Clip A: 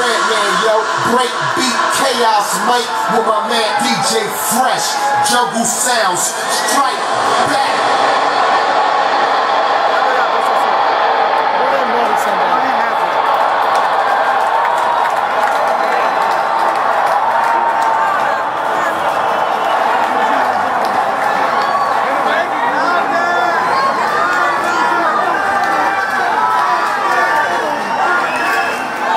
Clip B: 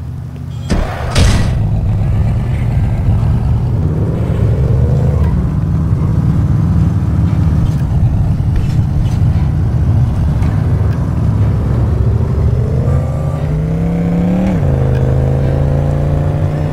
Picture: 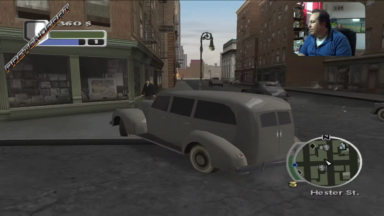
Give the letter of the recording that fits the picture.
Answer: B